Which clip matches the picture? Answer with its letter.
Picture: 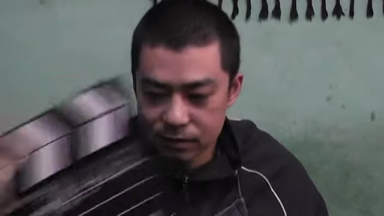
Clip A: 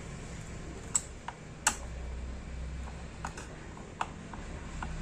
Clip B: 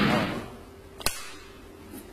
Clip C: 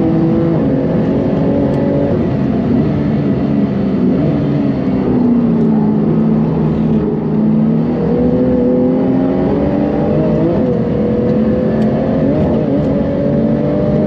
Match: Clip B